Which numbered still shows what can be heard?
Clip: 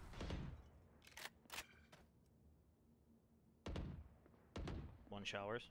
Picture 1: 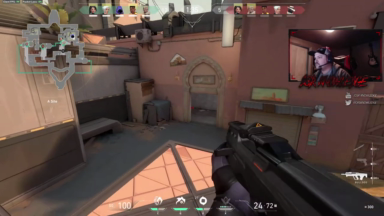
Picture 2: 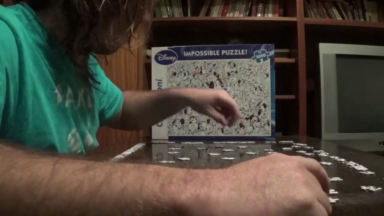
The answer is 1